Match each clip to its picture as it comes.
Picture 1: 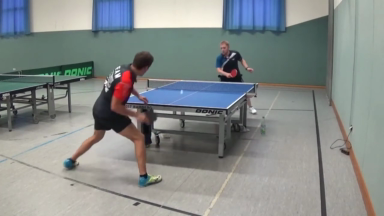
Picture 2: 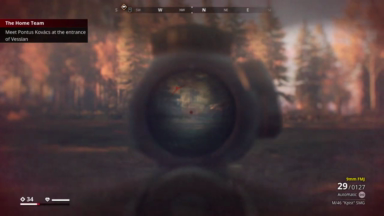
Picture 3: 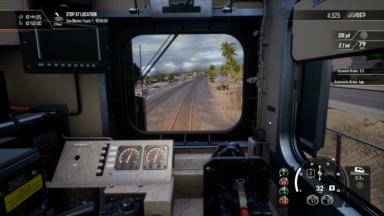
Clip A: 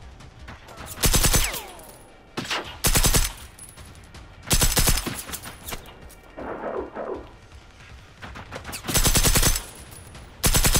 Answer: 2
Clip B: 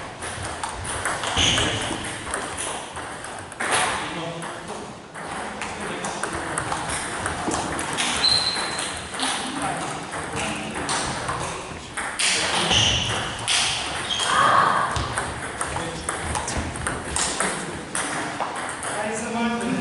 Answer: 1